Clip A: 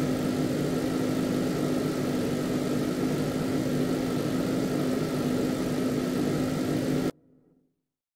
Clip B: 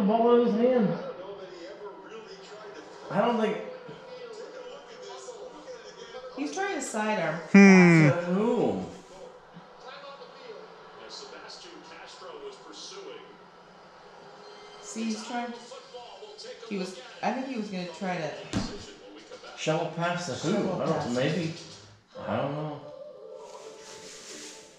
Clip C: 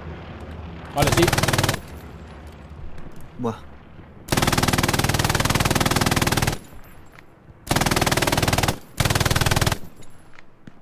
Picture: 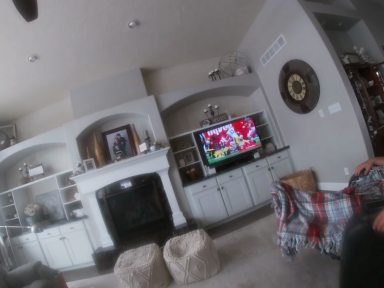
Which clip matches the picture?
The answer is B